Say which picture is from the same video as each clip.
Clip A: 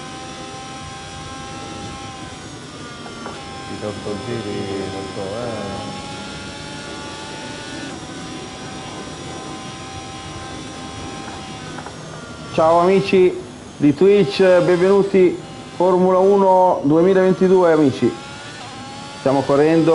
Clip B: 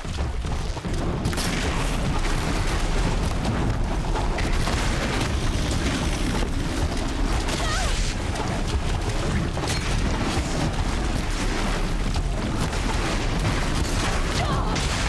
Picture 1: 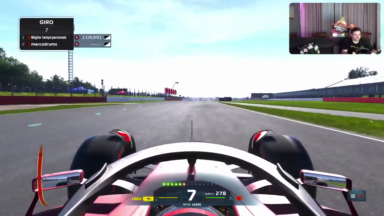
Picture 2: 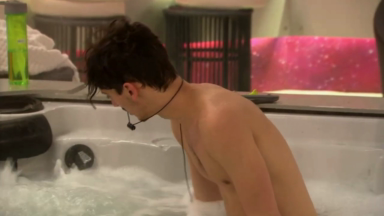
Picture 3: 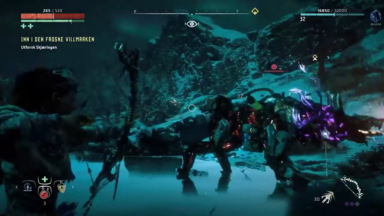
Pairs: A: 1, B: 3